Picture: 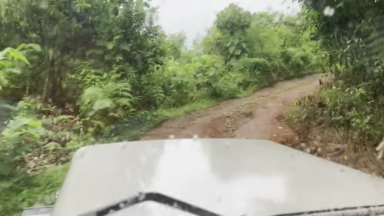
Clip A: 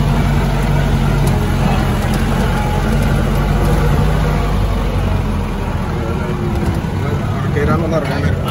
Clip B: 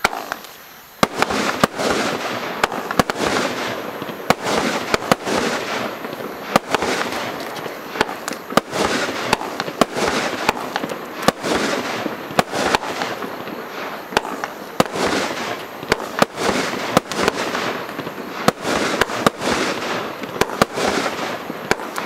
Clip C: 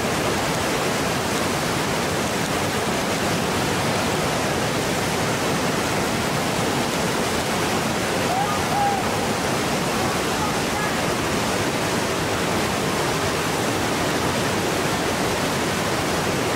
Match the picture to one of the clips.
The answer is A